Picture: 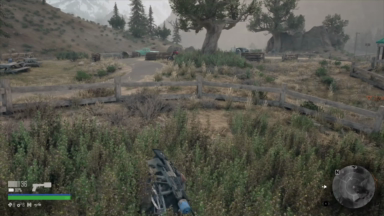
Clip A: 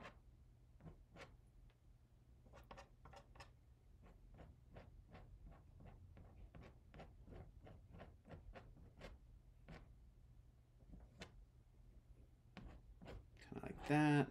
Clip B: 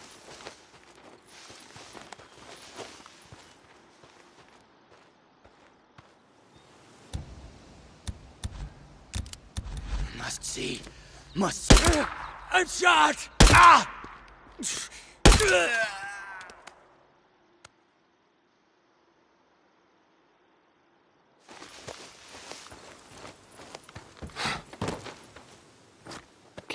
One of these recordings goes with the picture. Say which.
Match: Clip B